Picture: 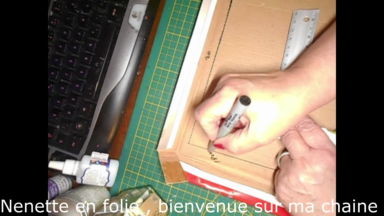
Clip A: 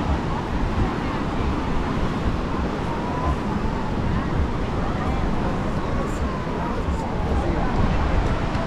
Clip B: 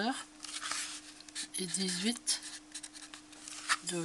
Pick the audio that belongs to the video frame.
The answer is B